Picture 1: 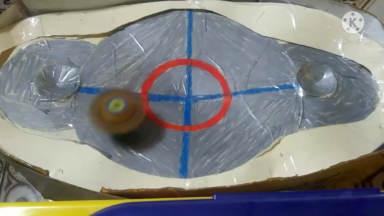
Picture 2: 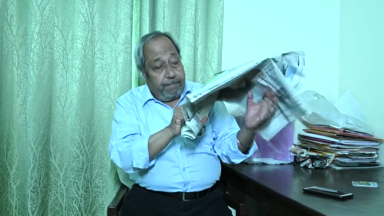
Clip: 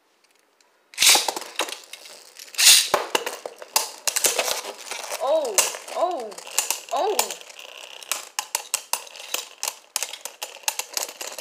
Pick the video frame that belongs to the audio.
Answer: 1